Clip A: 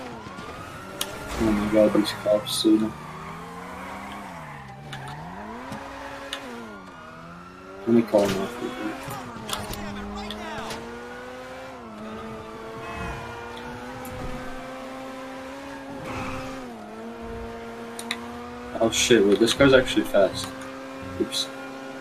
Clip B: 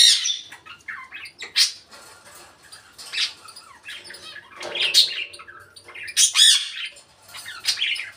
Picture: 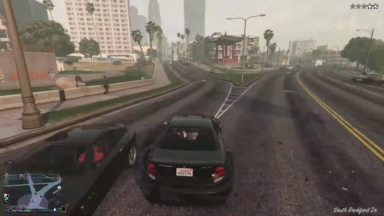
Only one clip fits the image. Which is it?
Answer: A